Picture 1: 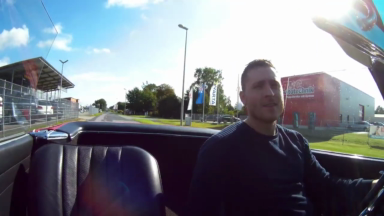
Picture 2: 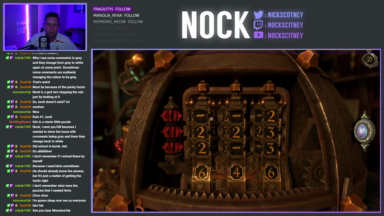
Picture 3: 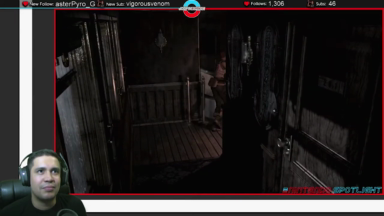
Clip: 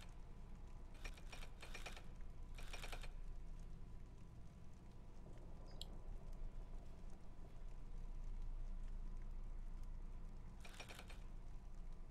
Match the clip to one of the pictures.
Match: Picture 2